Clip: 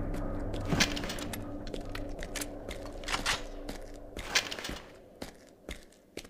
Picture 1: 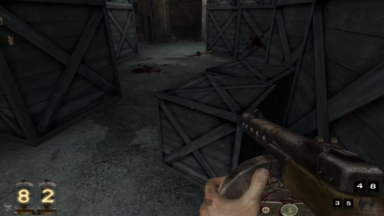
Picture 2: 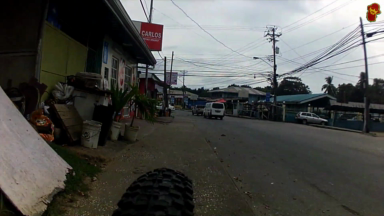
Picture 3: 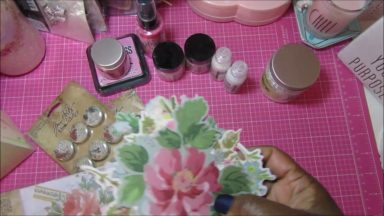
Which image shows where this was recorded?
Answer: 1